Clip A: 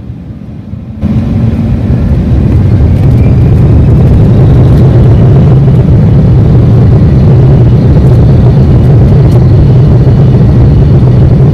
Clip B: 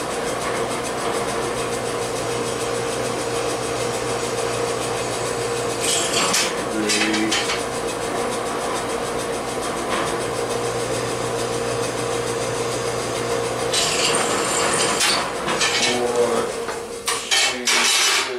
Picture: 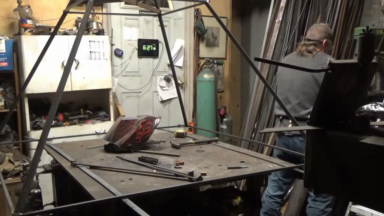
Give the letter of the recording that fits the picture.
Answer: B